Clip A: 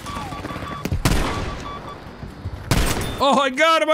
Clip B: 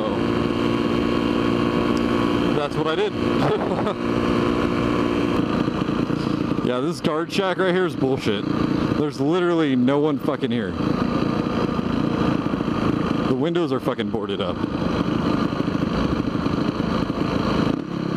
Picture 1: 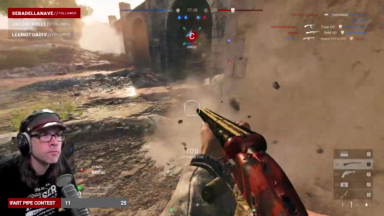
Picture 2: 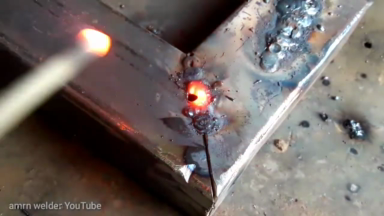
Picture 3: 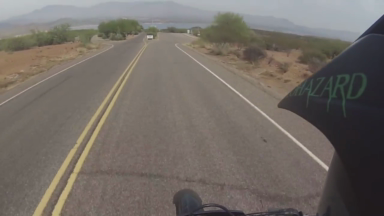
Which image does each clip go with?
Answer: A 1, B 3